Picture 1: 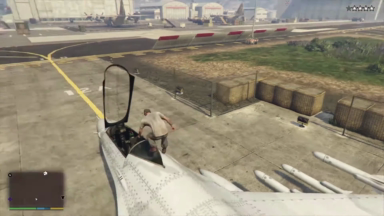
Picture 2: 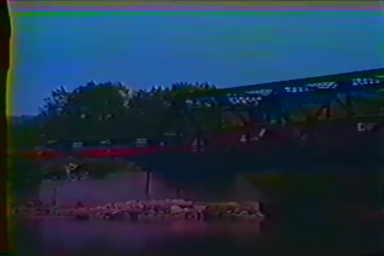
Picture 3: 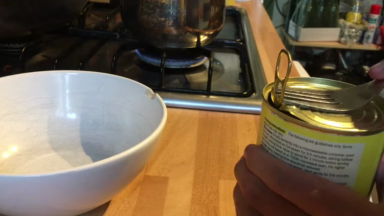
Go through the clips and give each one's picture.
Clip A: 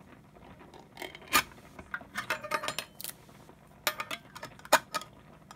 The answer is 3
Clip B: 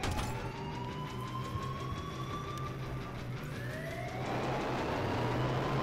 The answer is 1